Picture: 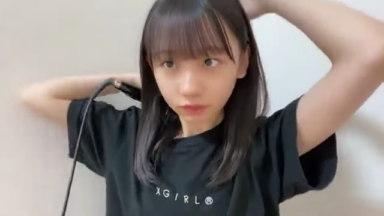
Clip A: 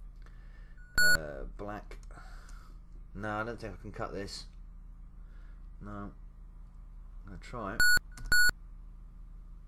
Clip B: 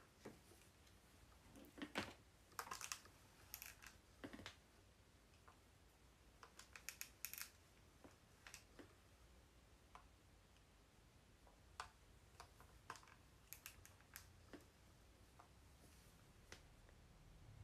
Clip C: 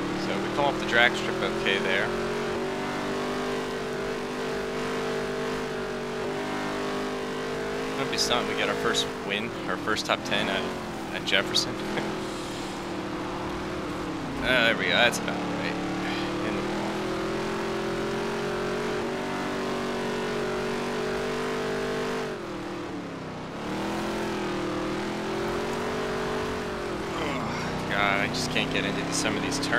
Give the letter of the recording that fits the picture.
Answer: B